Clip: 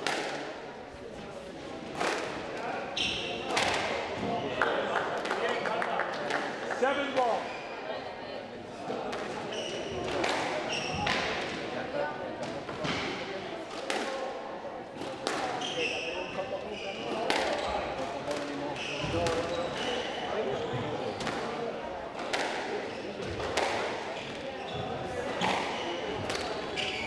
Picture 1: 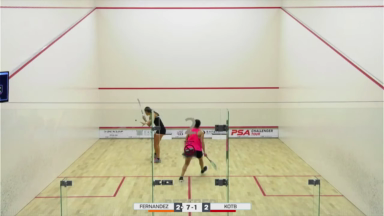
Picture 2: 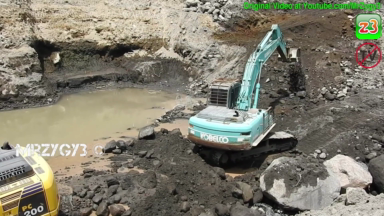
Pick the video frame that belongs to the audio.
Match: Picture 1